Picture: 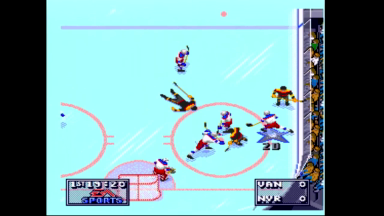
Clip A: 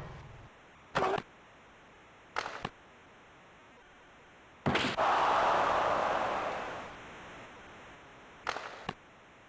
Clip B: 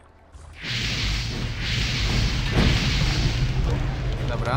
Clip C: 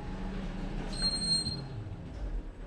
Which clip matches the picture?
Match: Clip A